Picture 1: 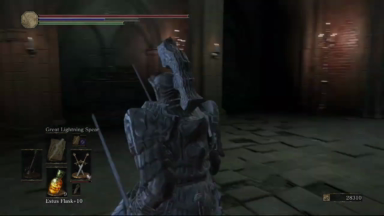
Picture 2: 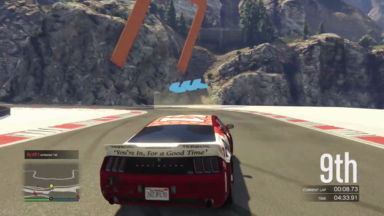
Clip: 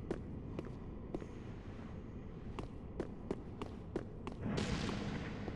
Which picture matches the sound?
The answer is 1